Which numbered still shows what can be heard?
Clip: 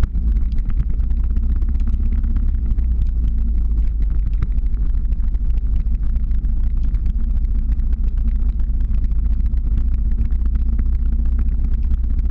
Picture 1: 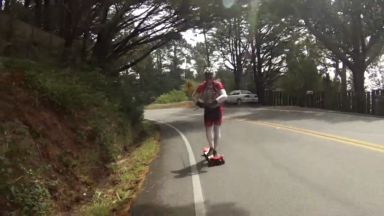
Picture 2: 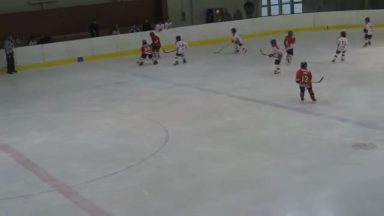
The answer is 1